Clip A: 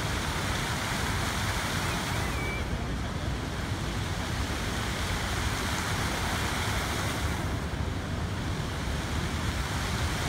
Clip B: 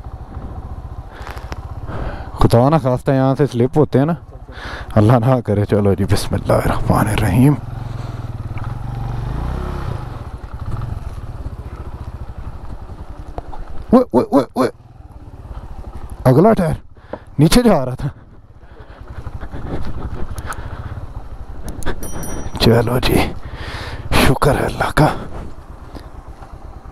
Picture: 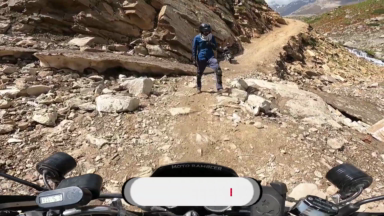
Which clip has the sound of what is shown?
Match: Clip B